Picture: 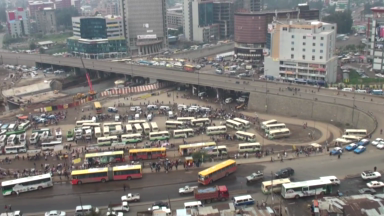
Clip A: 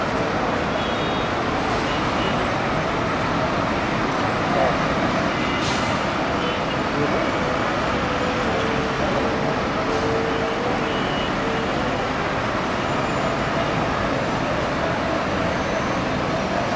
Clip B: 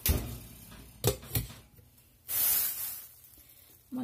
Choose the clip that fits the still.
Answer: A